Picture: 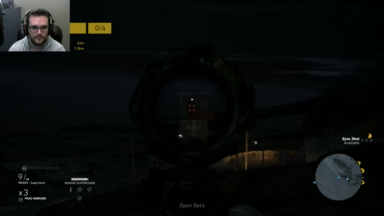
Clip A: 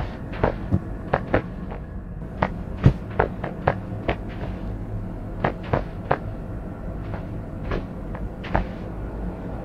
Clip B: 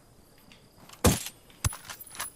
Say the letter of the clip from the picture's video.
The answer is B